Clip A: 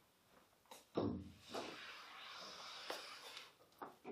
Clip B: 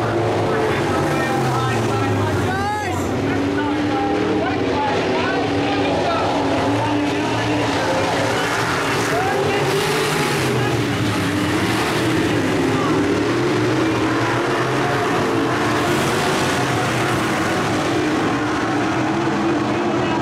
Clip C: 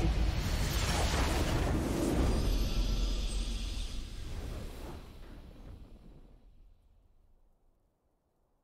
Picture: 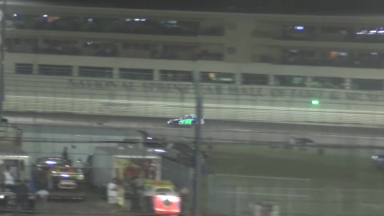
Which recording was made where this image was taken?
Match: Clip B